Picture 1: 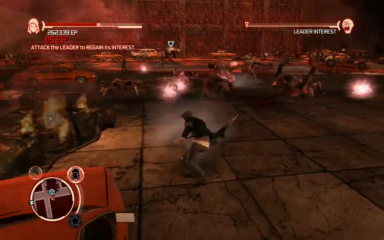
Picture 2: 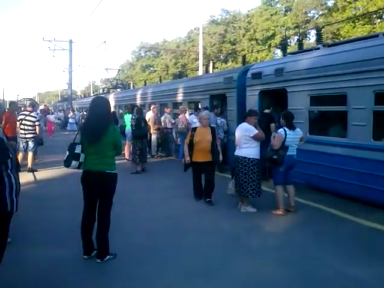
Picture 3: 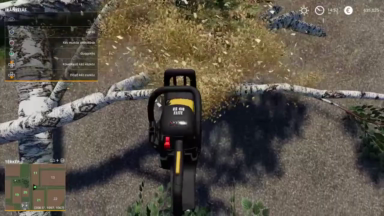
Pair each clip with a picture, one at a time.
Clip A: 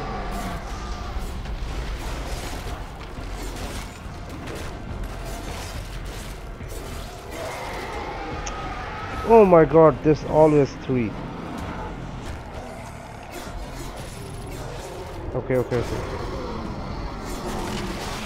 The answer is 1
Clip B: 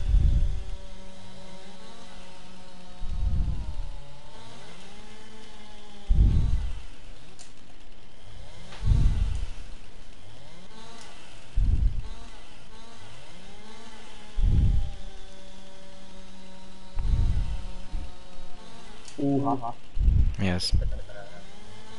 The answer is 3